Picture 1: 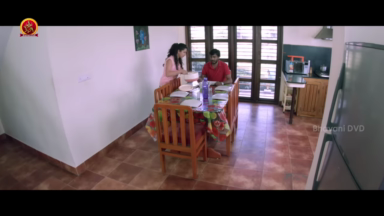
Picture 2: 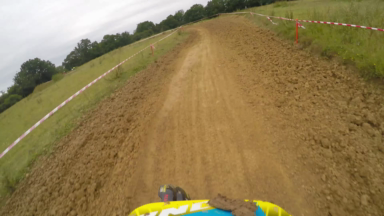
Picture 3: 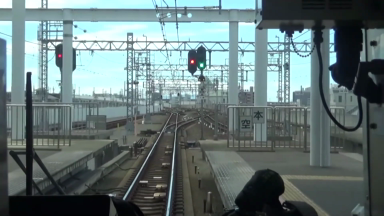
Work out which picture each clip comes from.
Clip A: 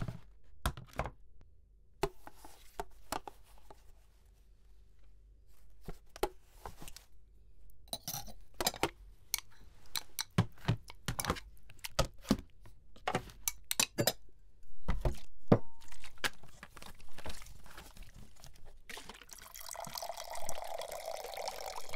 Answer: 1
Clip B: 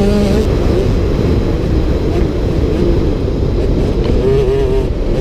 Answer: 2